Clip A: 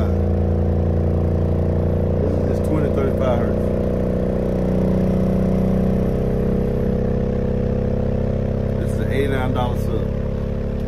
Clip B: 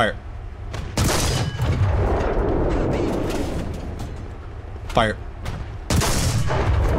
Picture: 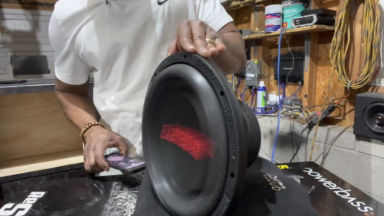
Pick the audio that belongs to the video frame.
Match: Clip A